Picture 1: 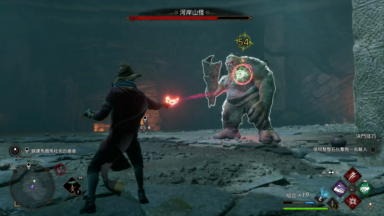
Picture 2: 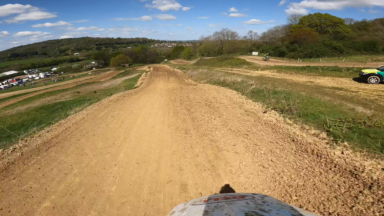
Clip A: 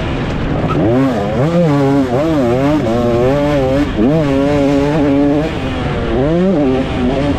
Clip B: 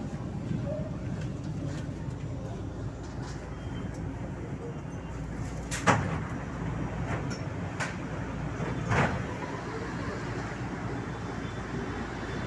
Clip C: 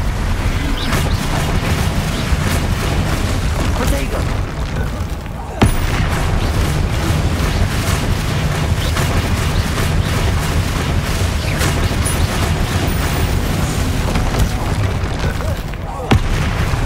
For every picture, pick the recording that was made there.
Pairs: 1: C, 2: A